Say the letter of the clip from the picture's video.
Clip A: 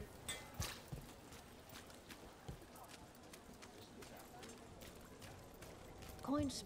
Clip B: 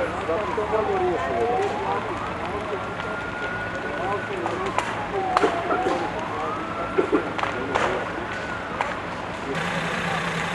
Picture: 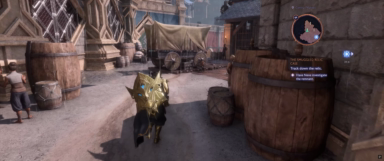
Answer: A